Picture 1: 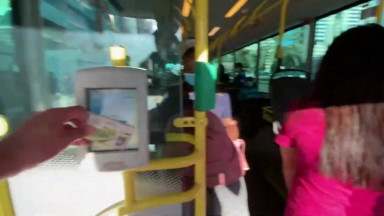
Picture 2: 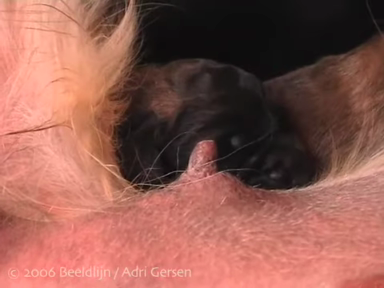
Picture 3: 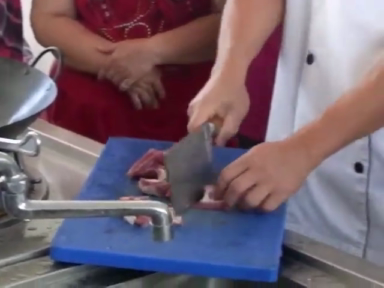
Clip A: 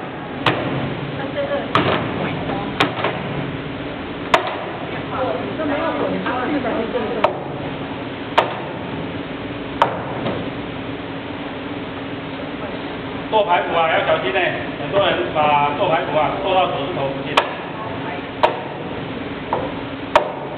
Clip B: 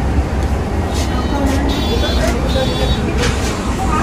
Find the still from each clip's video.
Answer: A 3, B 1